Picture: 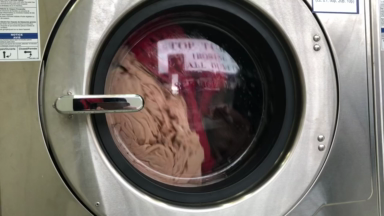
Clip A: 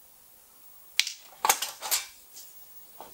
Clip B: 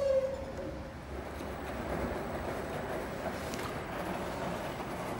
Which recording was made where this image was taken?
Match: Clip B